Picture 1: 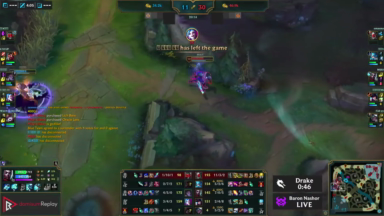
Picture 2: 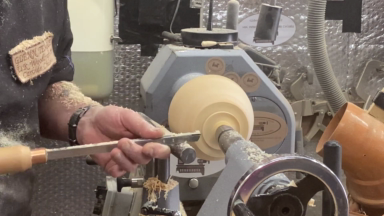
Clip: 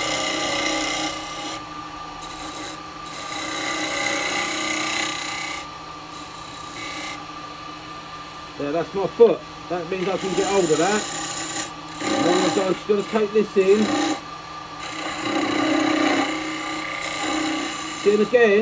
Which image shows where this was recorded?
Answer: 2